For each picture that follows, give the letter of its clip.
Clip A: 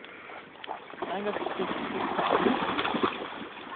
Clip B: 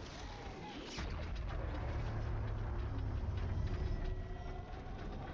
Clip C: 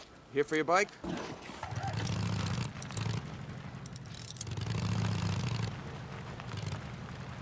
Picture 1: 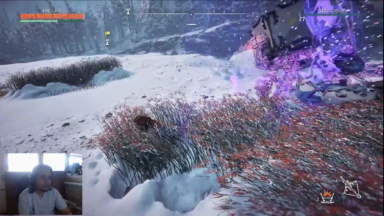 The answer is B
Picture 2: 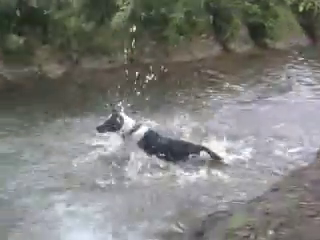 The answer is A